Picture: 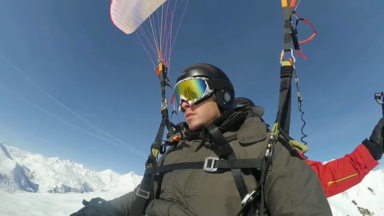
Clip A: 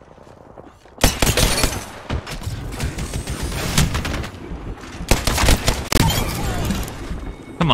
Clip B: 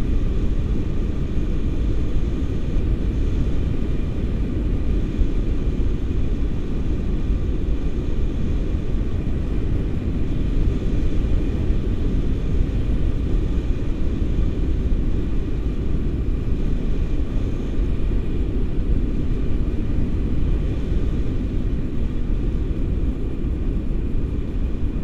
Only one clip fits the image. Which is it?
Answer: B